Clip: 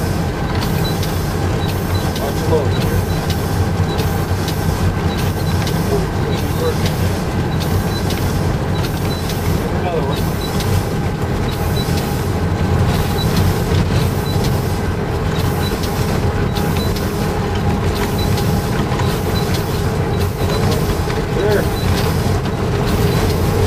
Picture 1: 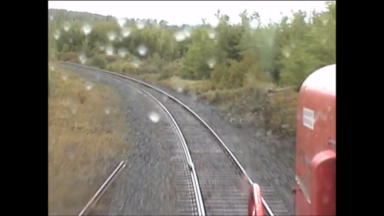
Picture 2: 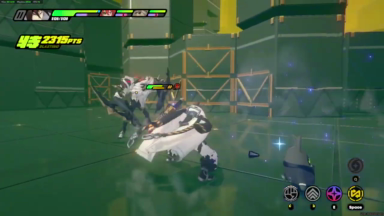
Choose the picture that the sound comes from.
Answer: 1